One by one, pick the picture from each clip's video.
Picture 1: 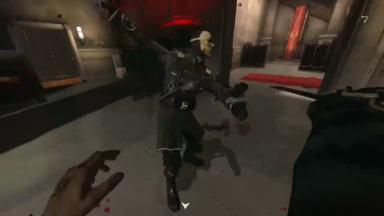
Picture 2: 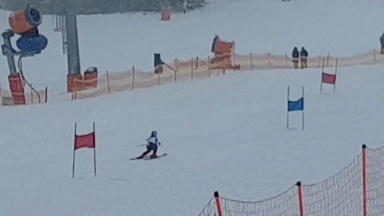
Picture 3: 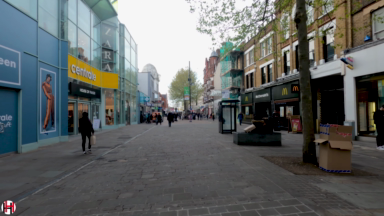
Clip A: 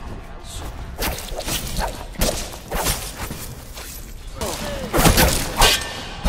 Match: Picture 1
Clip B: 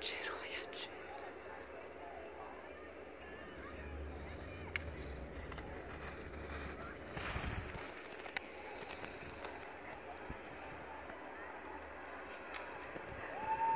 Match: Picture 2